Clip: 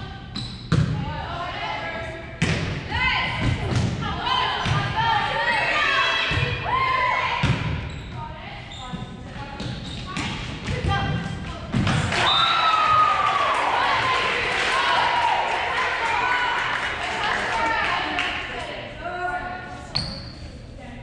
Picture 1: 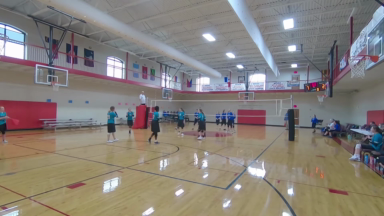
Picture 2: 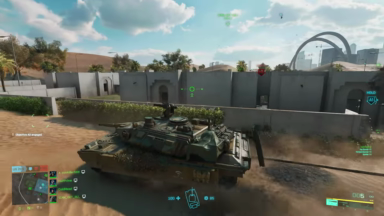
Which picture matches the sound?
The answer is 1